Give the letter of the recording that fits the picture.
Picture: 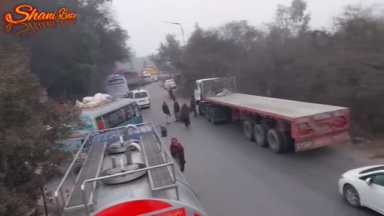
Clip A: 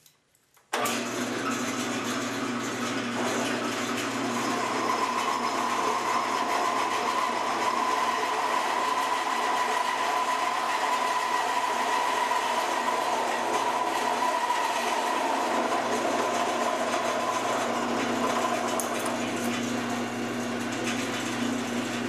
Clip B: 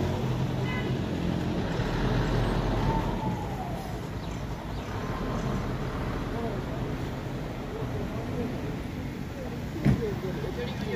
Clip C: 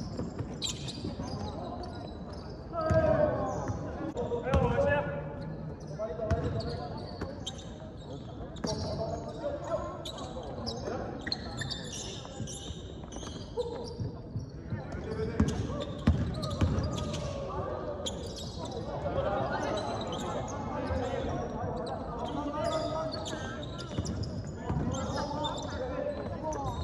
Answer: B